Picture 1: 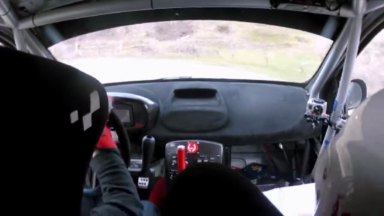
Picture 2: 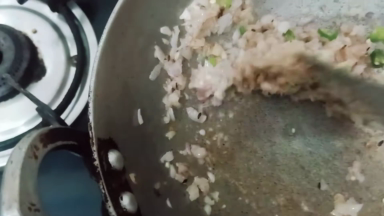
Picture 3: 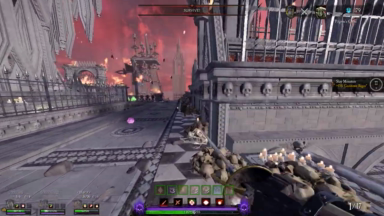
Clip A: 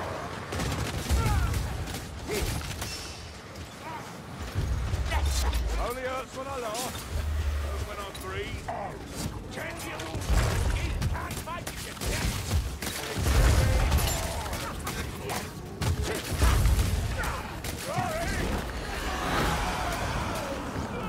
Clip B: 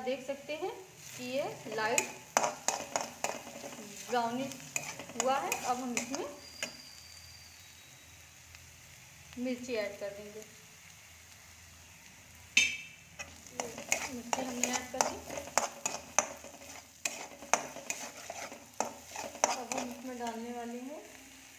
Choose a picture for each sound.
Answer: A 3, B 2